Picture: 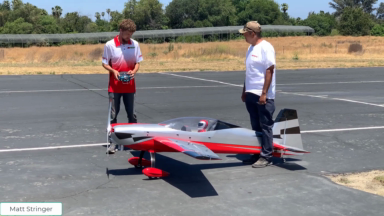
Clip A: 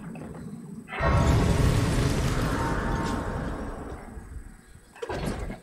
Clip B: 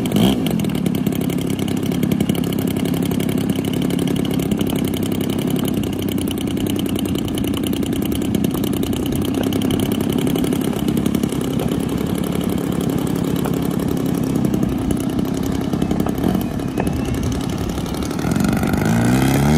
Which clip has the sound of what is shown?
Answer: B